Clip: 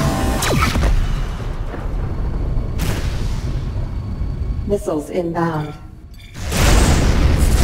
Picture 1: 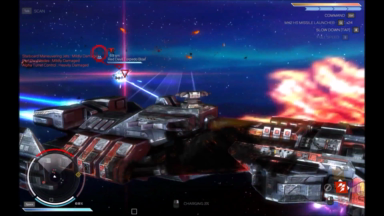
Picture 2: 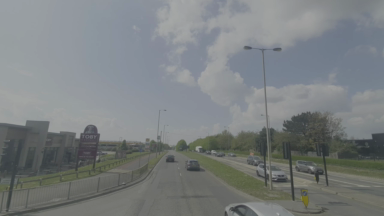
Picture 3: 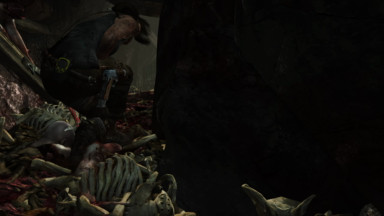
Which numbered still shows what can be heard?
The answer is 1